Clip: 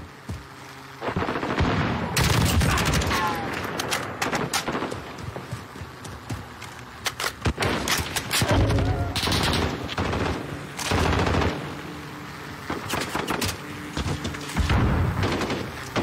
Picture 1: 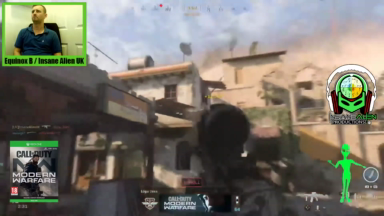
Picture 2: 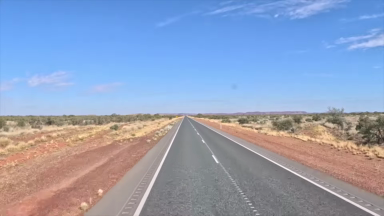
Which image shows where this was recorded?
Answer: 1